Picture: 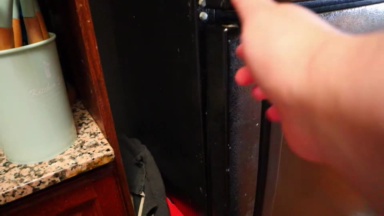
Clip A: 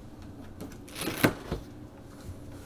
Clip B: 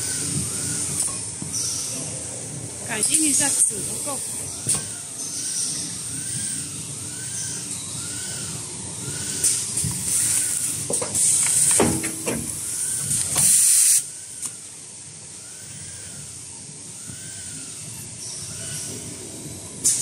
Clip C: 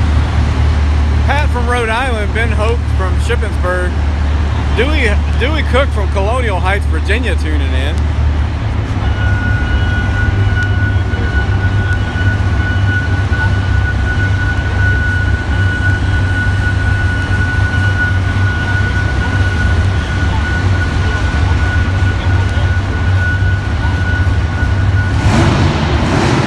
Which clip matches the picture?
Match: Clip A